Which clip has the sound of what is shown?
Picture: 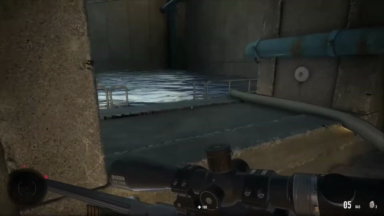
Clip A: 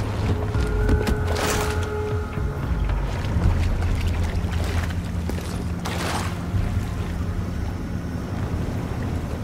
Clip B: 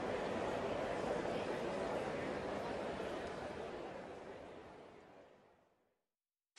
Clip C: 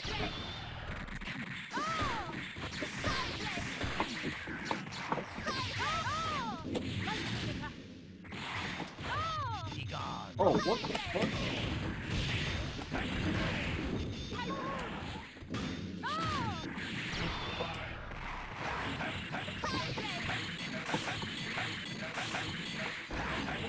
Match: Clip A